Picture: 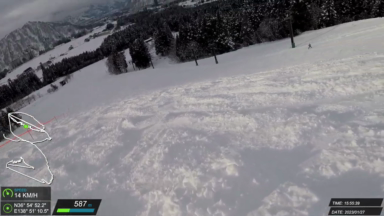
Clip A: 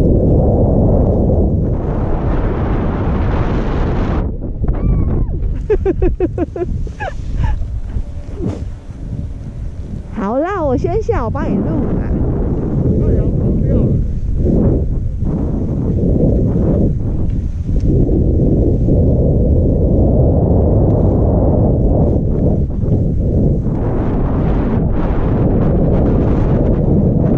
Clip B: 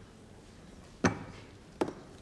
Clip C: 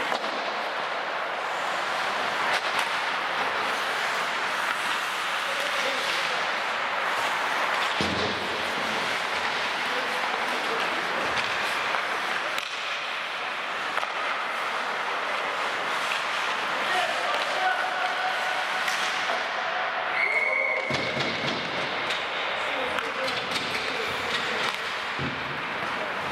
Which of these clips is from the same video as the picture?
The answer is A